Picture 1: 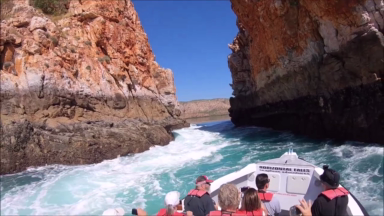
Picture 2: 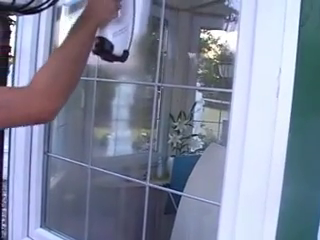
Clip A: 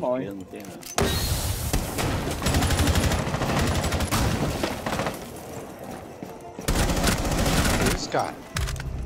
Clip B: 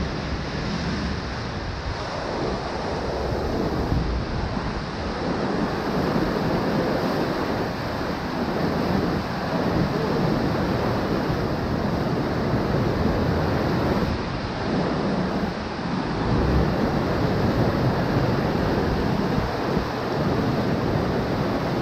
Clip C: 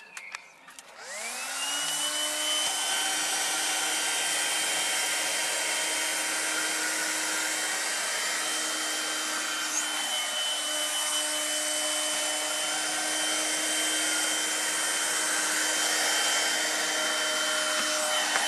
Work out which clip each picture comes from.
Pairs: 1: B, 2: C